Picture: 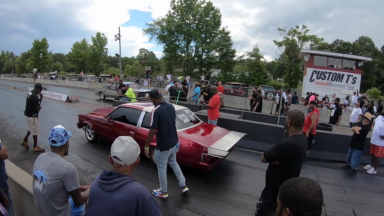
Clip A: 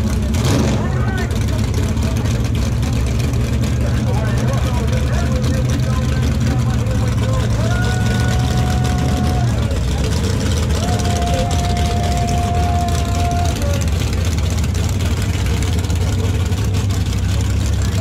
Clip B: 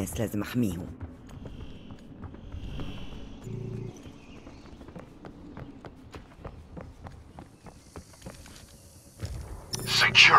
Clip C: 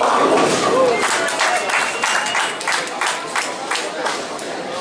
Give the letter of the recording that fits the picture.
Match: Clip A